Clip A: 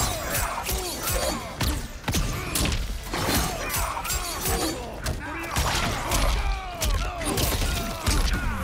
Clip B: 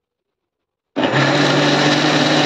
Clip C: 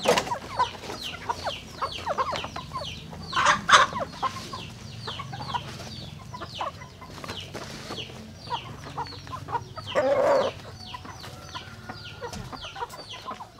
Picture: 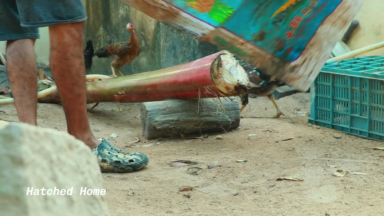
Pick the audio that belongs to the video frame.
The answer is C